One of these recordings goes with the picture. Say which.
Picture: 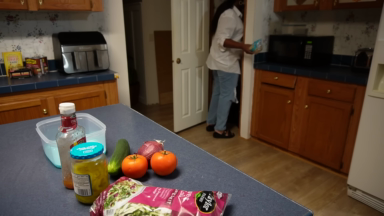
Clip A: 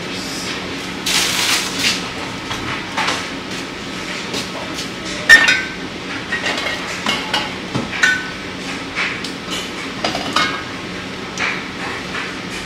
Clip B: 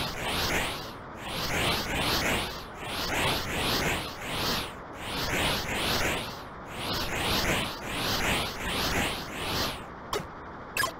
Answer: A